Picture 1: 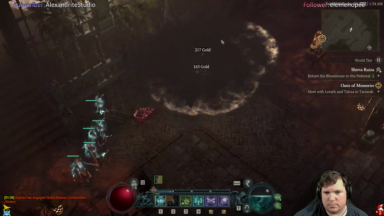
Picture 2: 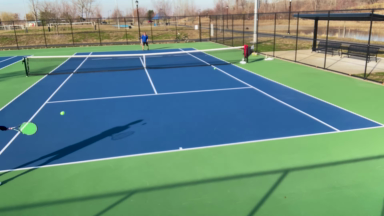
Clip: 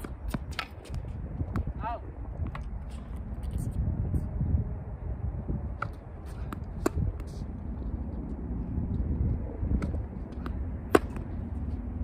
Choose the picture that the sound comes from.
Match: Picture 2